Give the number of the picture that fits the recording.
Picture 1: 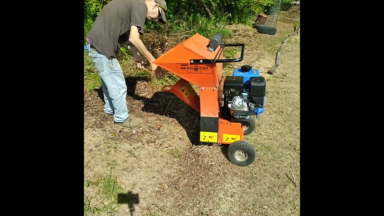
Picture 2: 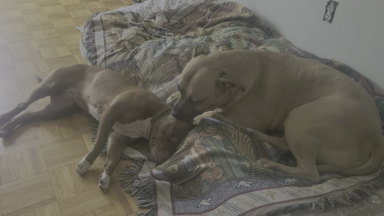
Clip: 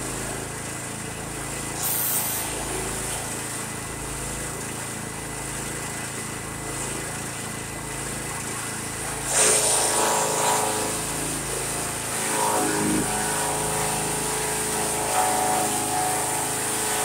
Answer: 1